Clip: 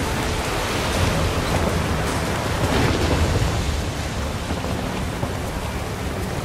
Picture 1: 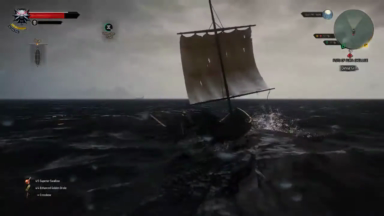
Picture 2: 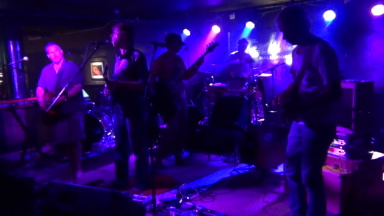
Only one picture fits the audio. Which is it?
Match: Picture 1